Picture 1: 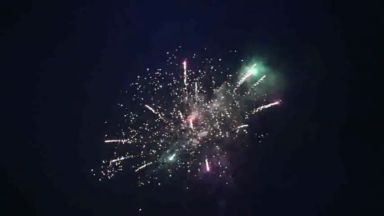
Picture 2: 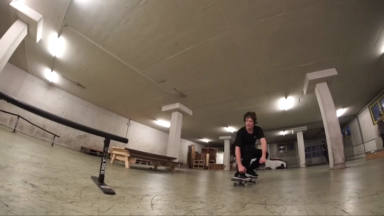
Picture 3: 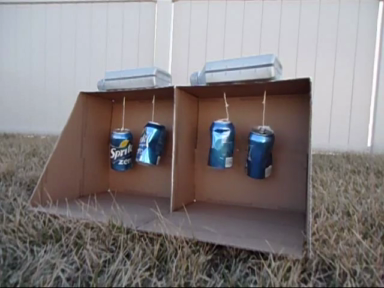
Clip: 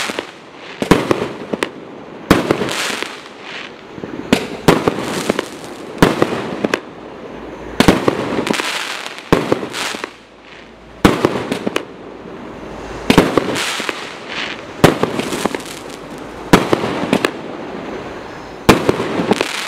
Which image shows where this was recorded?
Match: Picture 1